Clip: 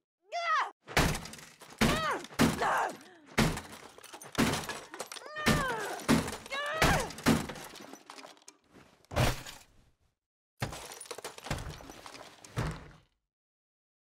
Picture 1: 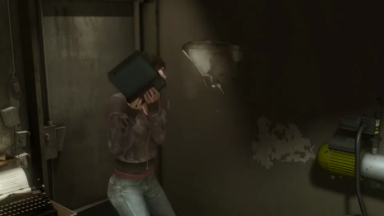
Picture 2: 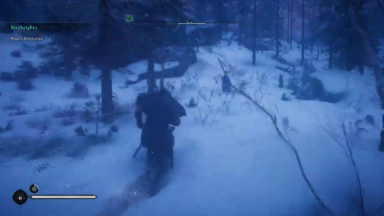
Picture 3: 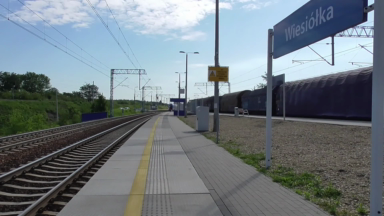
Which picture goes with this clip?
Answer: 1